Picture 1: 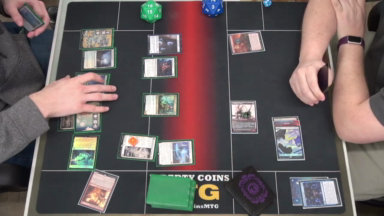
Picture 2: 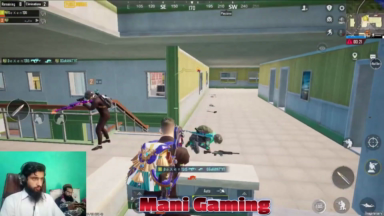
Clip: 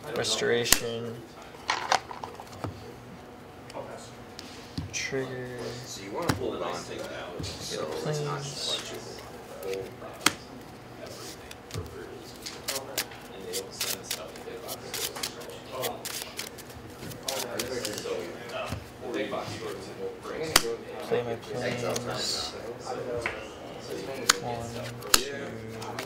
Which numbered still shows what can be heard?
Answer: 1